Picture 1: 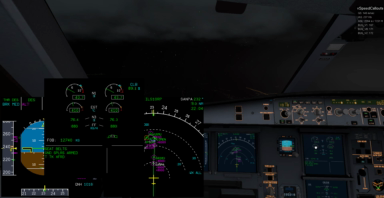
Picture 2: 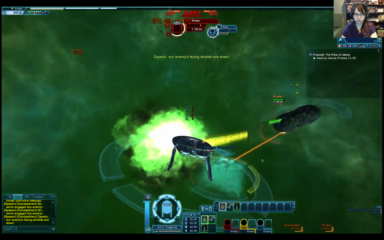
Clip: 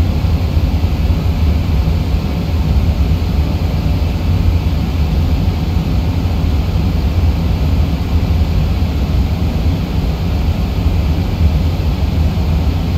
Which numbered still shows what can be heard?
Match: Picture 1